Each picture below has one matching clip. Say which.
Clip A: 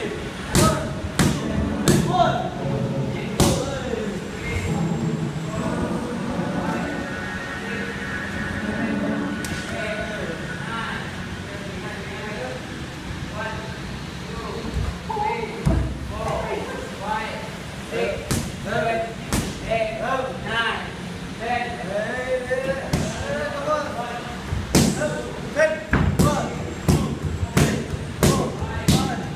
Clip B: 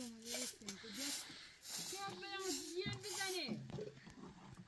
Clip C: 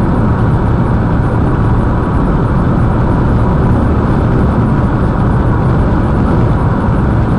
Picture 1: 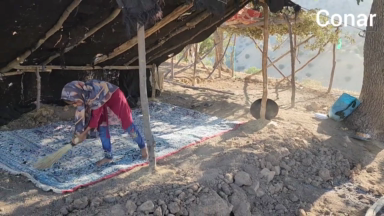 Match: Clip B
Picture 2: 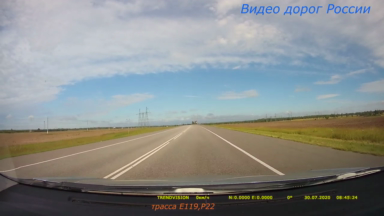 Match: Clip C